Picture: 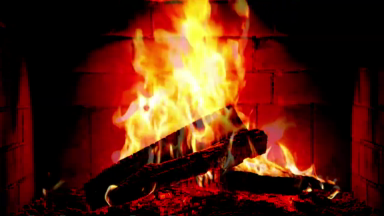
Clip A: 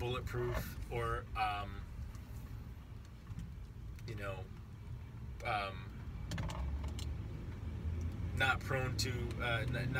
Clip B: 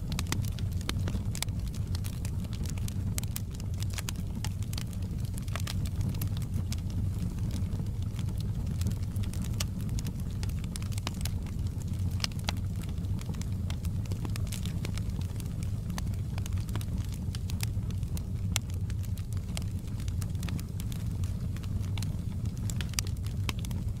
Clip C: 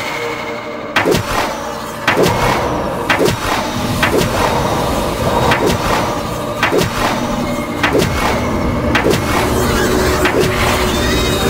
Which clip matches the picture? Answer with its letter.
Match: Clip B